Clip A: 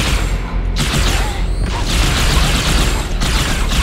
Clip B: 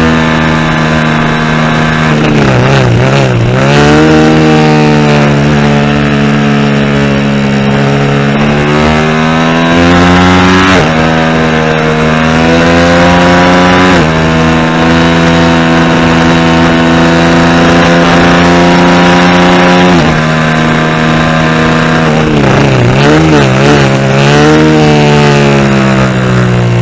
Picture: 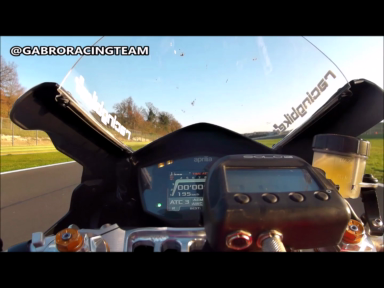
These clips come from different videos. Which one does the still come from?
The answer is B